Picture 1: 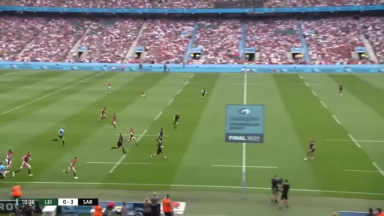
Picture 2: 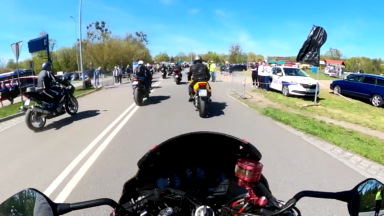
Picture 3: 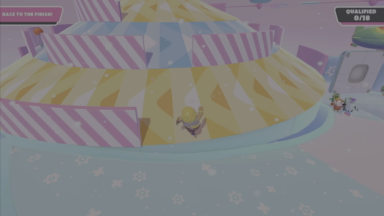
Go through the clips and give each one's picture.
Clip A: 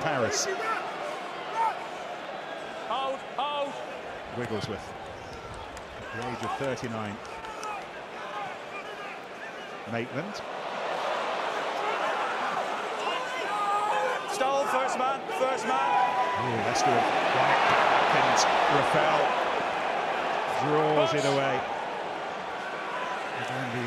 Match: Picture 1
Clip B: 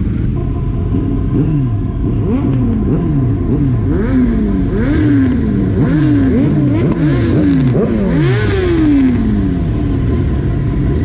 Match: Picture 2